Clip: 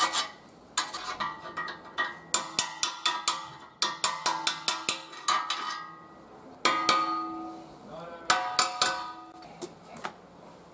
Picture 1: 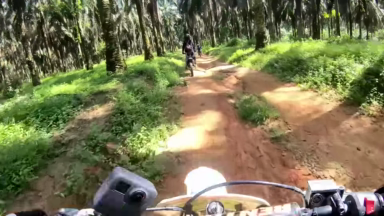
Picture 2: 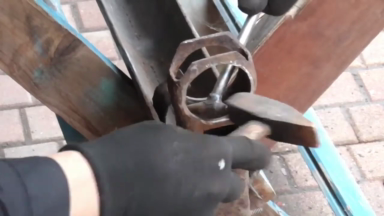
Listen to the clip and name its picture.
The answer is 2